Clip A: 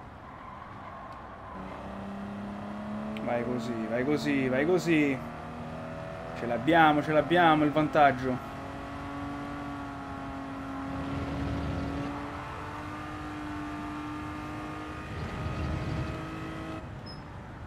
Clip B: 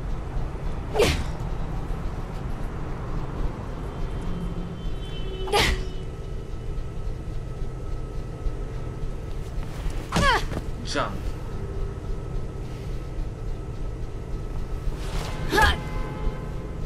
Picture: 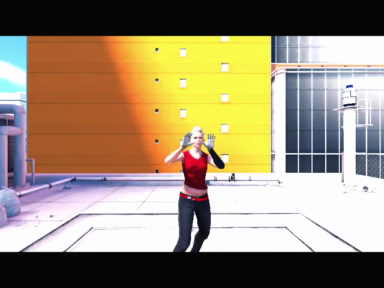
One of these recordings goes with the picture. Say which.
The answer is B